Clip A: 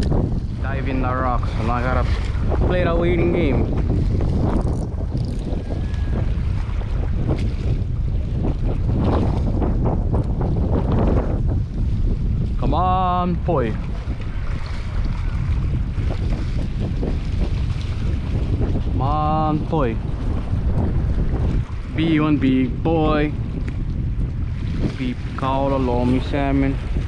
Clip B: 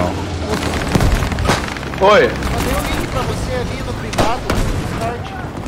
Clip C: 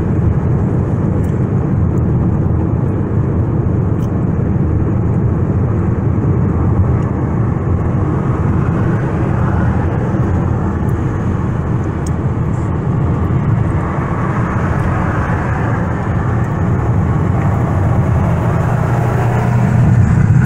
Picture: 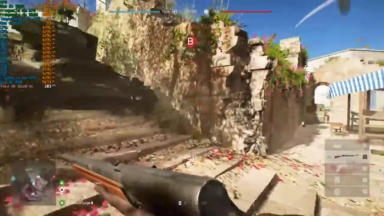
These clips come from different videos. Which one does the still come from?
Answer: B